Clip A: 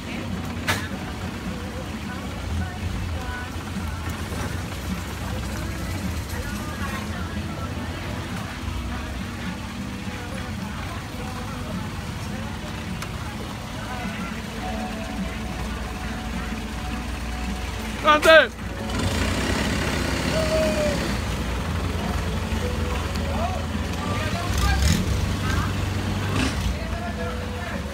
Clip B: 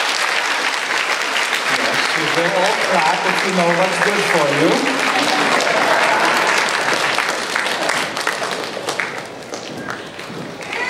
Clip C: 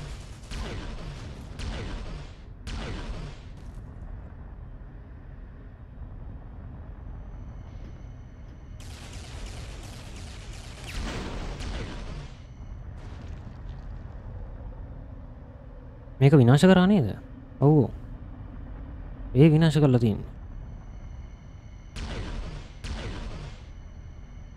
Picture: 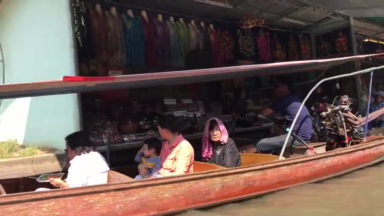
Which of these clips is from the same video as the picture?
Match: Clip A